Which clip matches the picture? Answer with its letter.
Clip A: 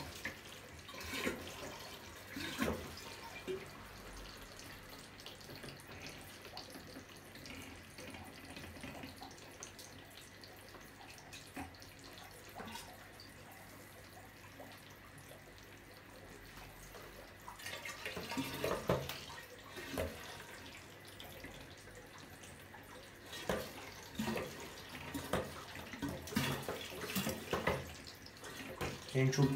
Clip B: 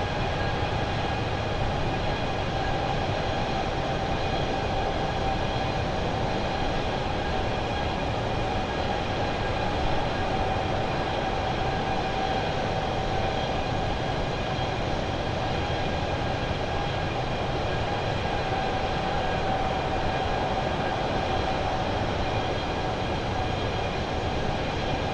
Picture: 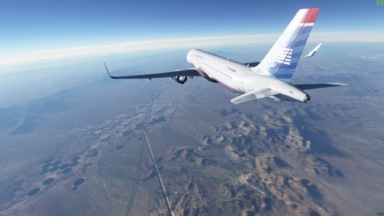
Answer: B